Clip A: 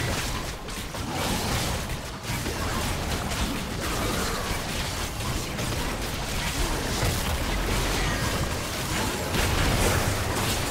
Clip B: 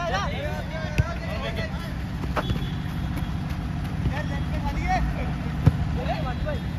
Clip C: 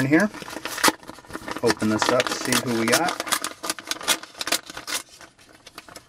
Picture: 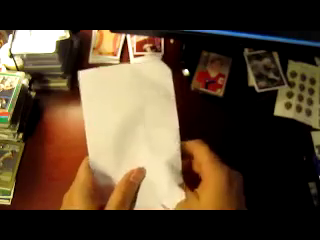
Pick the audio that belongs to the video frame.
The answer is C